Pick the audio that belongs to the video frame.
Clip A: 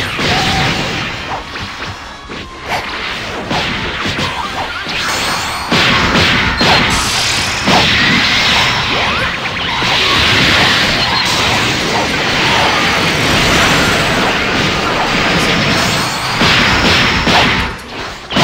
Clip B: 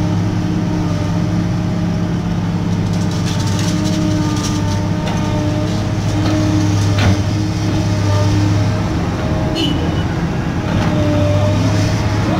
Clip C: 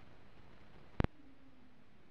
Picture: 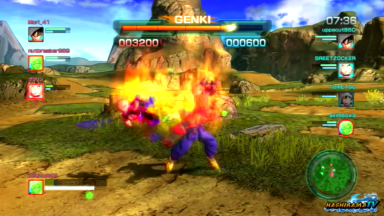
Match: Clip A